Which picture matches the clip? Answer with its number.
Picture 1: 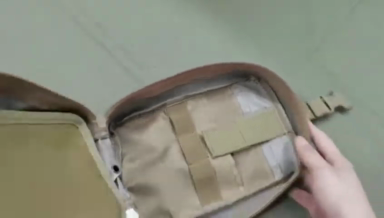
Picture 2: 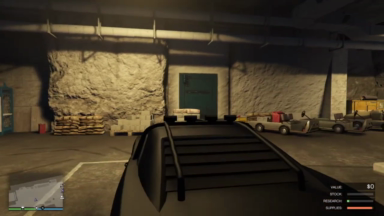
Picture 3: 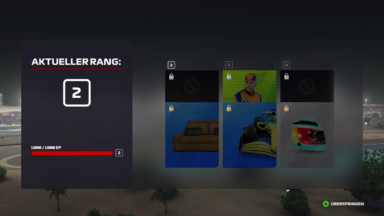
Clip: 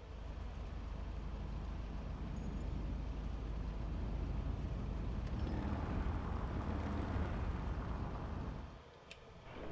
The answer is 2